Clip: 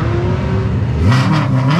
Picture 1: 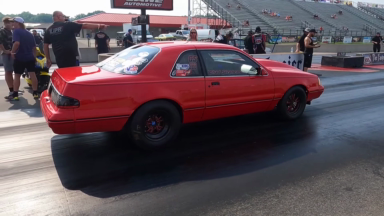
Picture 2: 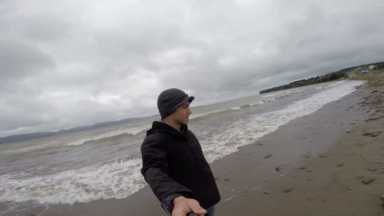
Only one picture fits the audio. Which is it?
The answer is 1